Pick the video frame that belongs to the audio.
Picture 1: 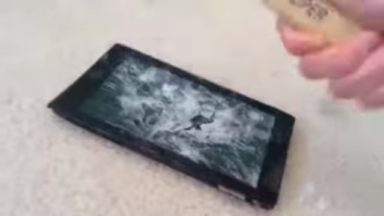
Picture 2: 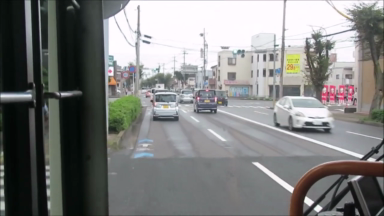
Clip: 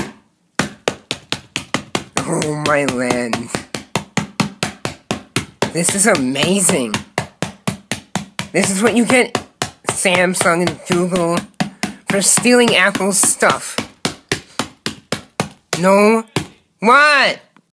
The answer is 1